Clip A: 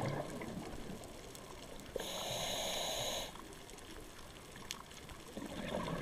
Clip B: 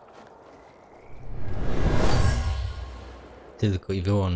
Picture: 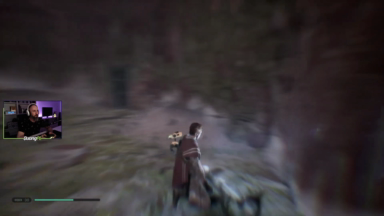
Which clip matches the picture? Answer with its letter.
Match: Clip B